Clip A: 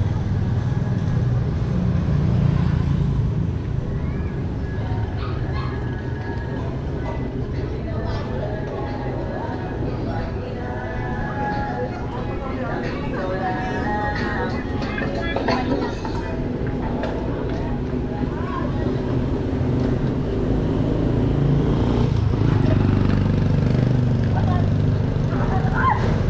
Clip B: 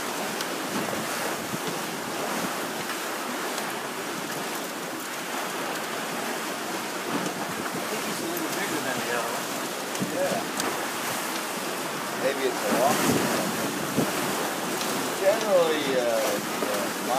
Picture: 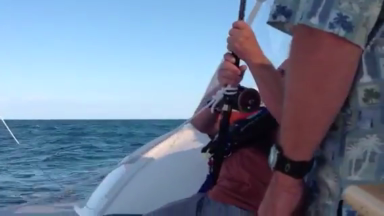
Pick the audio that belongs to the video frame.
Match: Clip B